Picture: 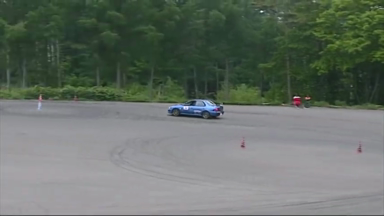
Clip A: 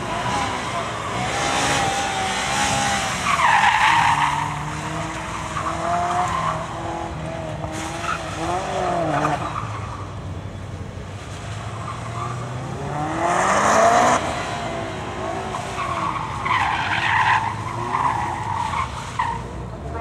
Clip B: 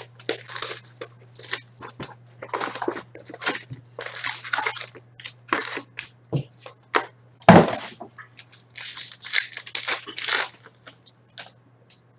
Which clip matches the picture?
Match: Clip A